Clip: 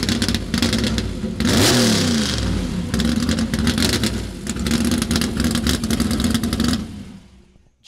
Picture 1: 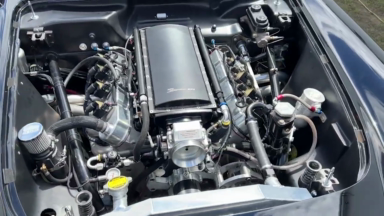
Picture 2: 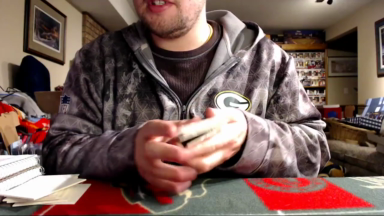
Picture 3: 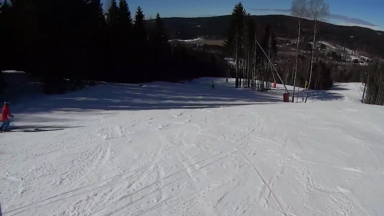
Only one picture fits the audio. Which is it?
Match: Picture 1